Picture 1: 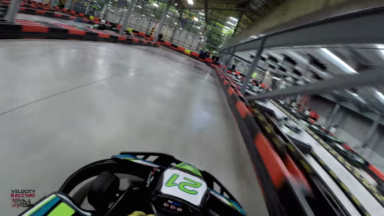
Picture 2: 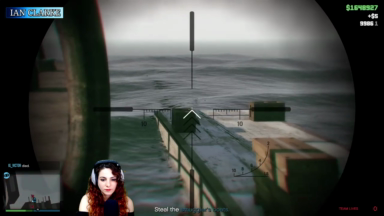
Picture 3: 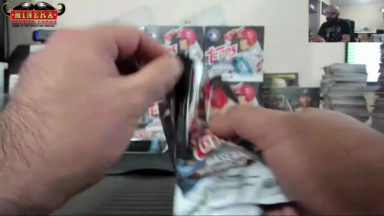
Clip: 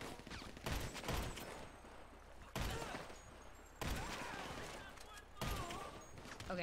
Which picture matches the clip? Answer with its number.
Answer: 2